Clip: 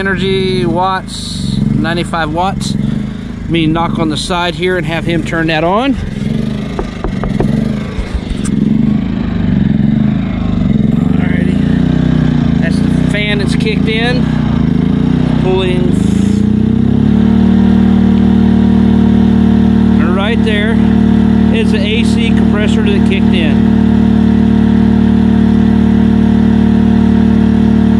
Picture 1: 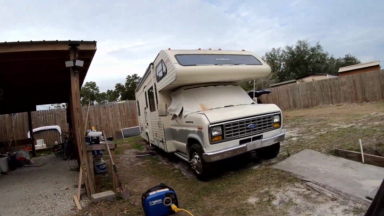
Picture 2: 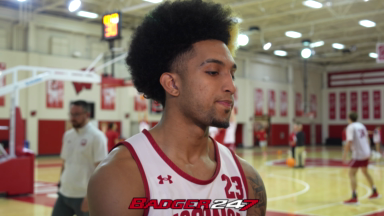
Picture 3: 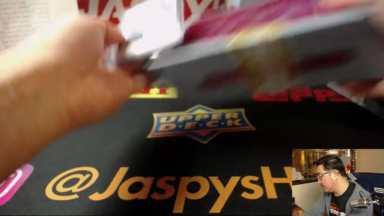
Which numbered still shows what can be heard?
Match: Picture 1